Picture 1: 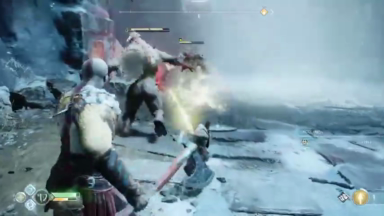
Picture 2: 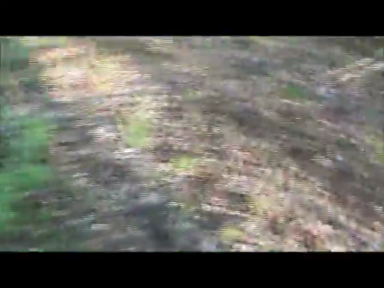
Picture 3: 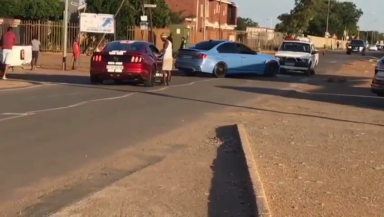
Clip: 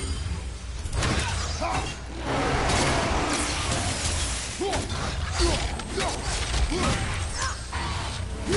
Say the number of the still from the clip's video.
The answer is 1